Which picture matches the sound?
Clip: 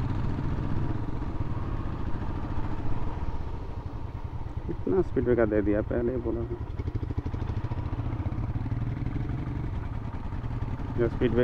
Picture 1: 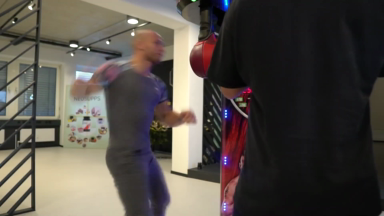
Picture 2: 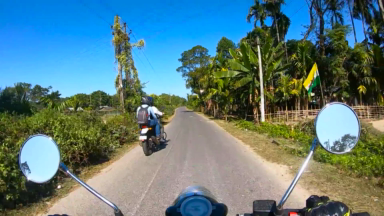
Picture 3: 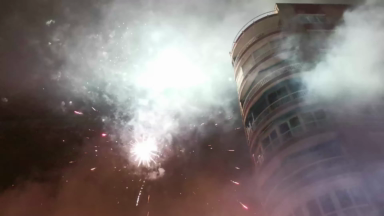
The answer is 2